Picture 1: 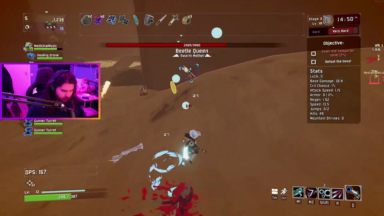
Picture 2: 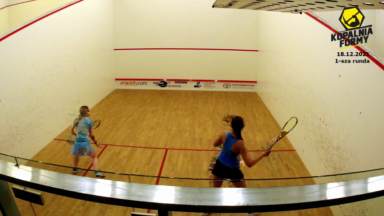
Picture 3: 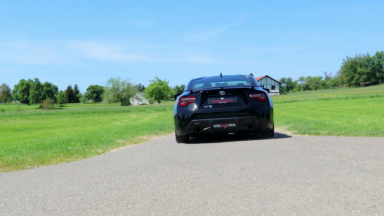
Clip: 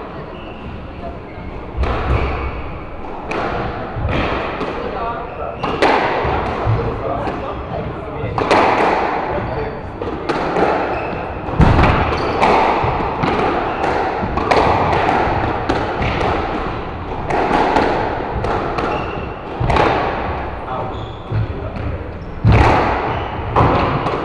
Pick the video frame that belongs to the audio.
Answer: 2